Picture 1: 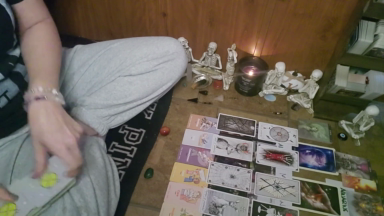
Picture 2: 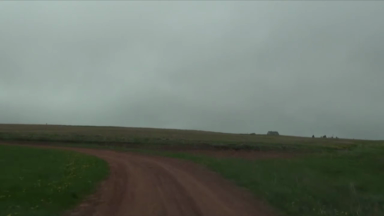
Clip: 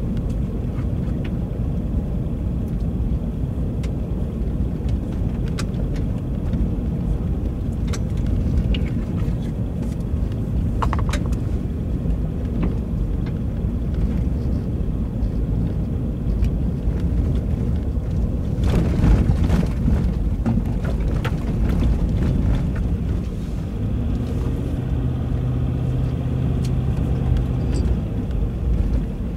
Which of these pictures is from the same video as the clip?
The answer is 2